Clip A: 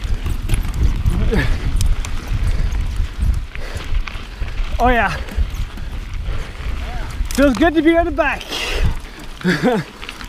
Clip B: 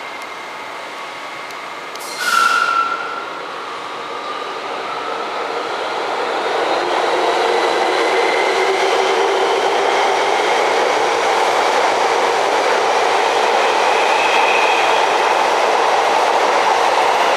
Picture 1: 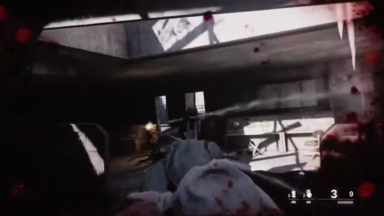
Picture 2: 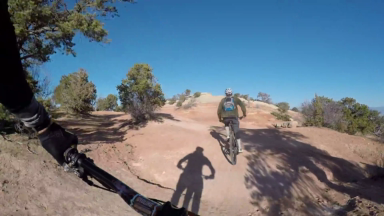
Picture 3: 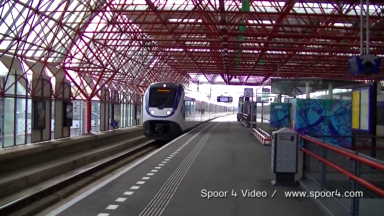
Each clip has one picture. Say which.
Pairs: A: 2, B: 3